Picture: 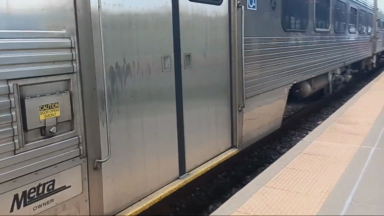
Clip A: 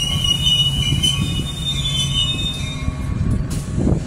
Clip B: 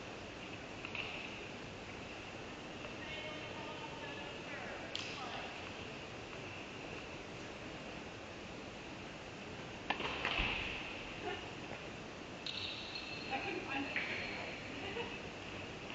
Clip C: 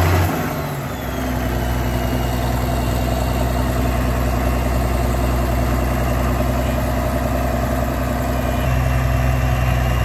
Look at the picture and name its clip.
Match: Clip A